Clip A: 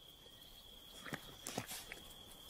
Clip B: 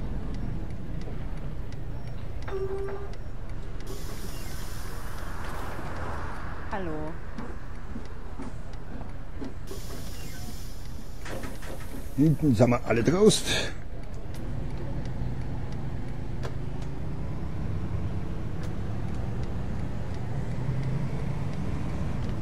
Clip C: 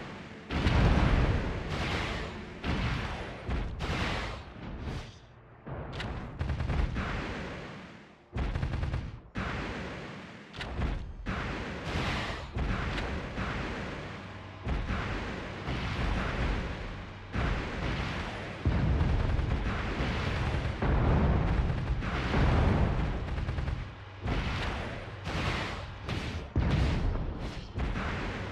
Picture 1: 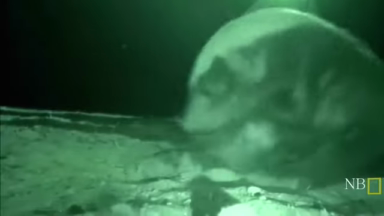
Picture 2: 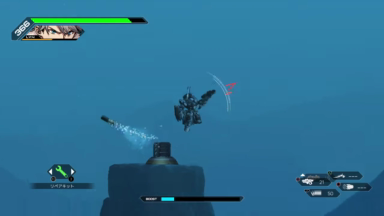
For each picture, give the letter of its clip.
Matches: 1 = A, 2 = C